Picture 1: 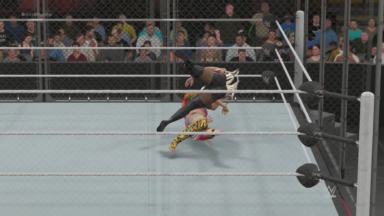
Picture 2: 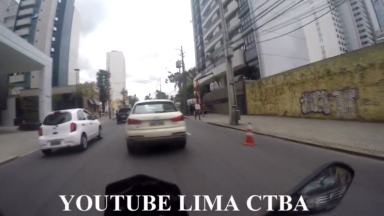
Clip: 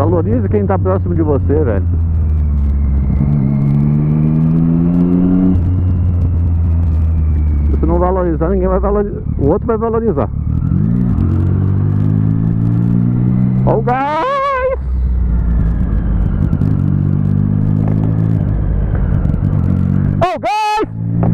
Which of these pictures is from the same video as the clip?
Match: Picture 2